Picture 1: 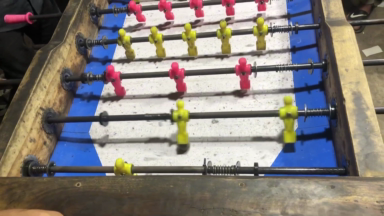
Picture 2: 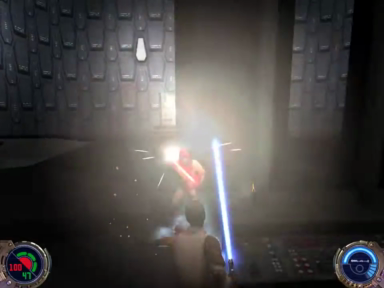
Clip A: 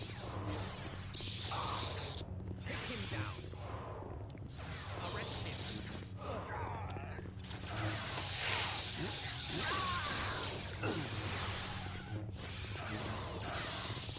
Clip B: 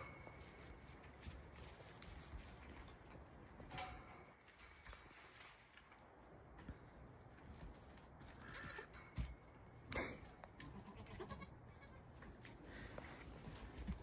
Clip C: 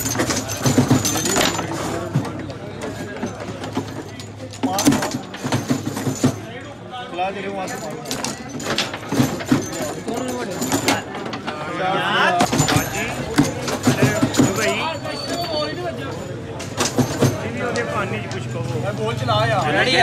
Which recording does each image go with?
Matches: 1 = C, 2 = A